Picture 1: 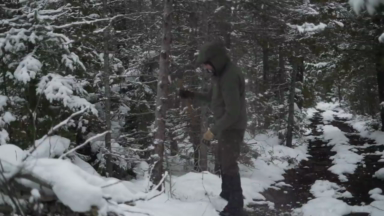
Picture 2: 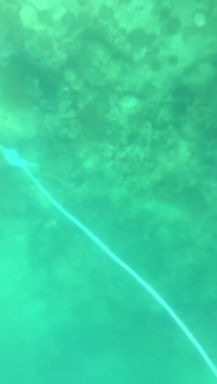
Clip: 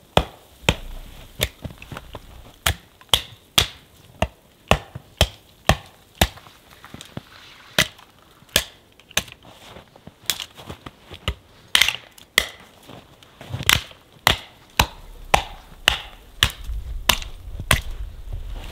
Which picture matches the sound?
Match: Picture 1